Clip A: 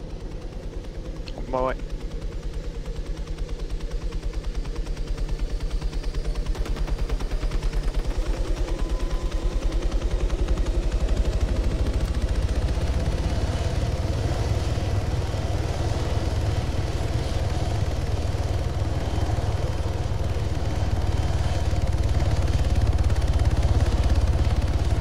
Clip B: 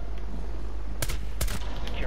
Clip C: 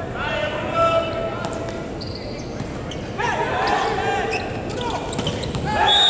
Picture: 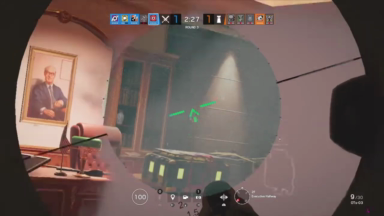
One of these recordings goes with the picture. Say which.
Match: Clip B